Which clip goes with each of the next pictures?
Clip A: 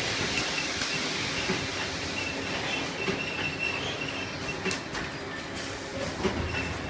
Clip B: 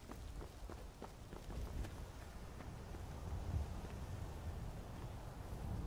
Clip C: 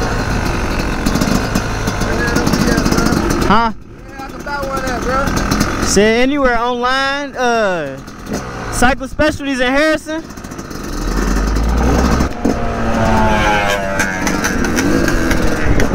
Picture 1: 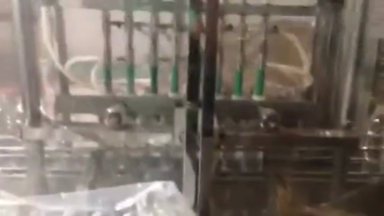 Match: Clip A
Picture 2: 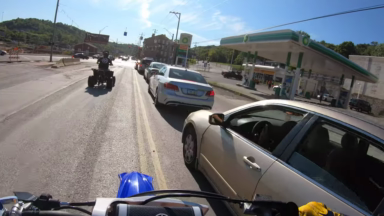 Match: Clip C